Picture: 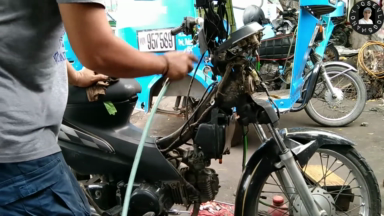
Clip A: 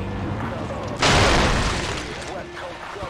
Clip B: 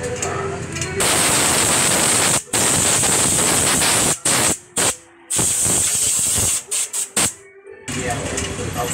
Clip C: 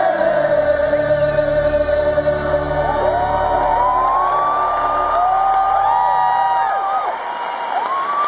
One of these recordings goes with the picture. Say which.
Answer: B